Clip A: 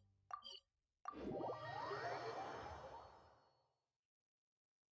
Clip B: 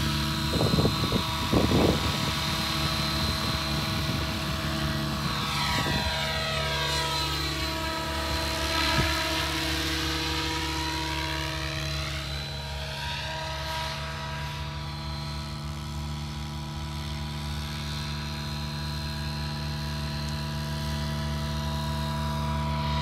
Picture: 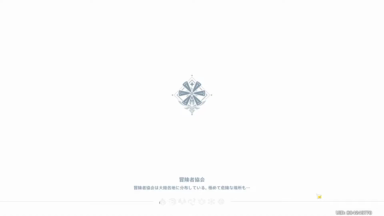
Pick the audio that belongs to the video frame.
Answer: A